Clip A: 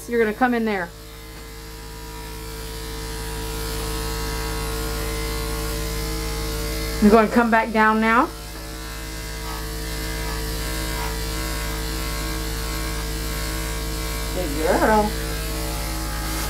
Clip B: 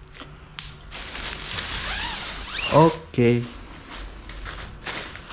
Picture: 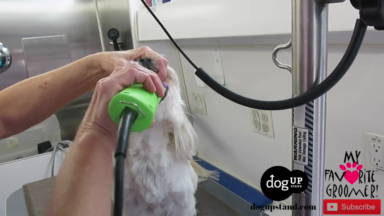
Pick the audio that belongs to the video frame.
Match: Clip A